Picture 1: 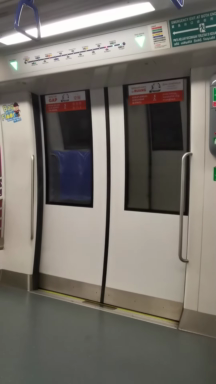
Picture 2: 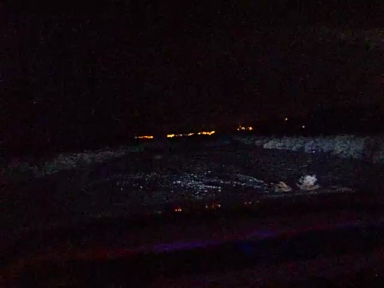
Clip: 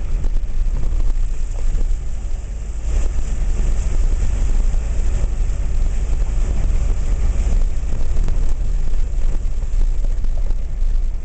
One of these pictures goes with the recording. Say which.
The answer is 2